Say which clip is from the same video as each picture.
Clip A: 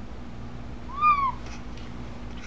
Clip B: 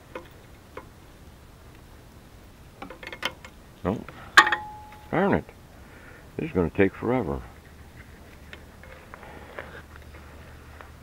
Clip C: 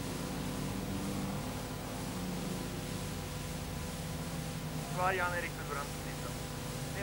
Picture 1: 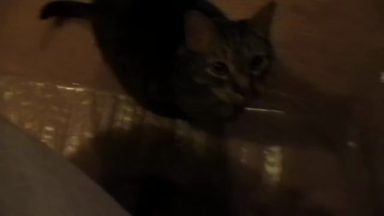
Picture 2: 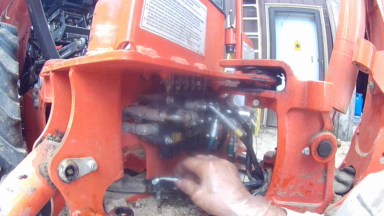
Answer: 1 A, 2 B